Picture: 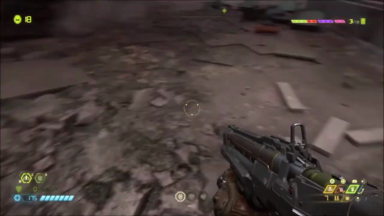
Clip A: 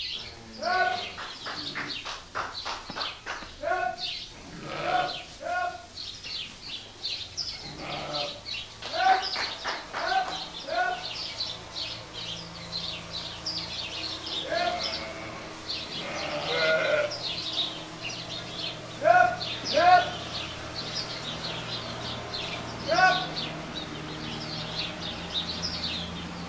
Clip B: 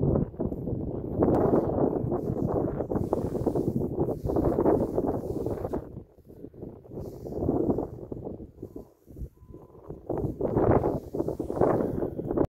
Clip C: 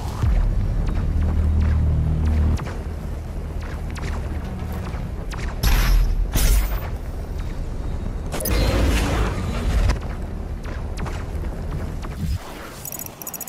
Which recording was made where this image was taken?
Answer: C